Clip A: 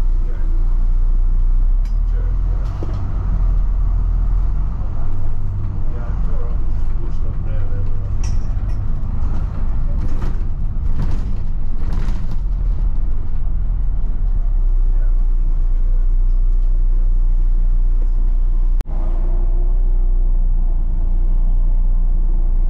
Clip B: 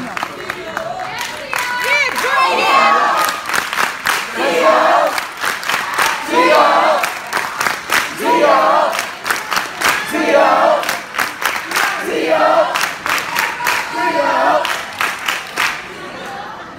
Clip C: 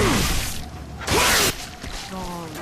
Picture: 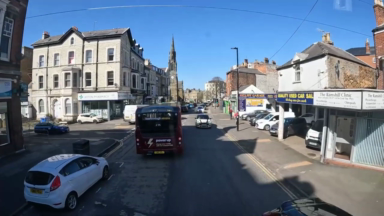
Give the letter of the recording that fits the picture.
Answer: A